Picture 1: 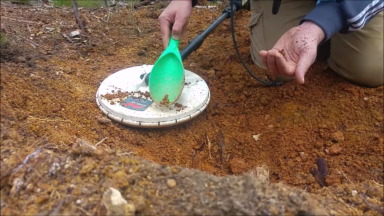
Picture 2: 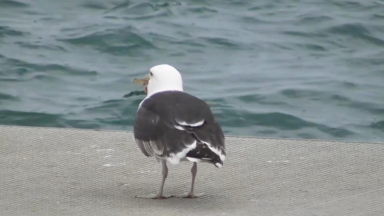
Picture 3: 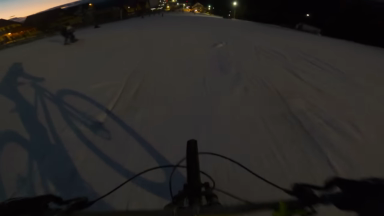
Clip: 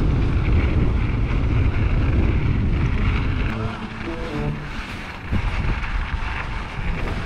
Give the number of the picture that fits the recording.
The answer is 3